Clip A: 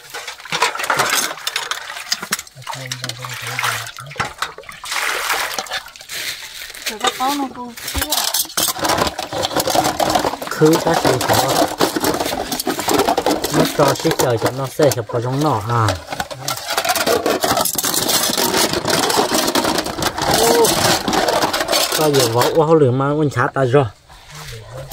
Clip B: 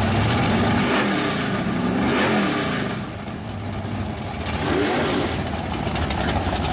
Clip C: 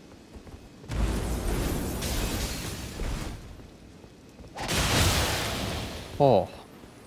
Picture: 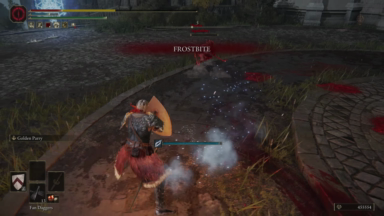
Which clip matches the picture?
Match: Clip C